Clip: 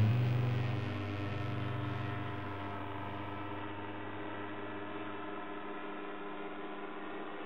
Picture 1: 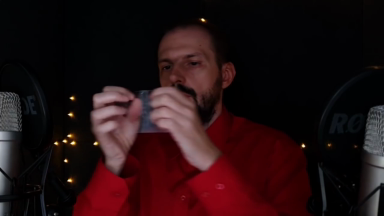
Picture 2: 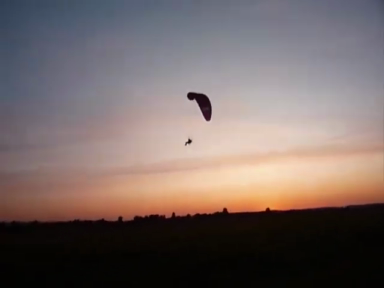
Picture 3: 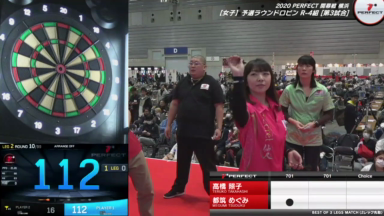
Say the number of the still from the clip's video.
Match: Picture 2